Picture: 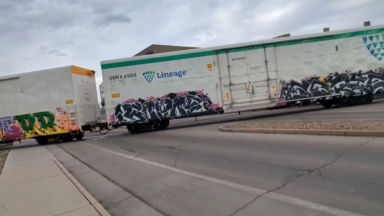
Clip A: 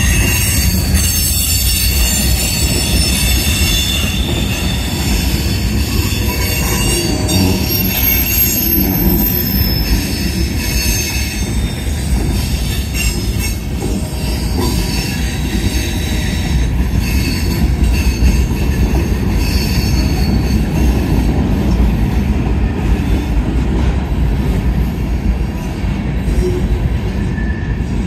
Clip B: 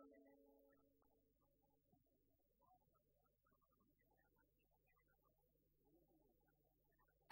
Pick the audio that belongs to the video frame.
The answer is A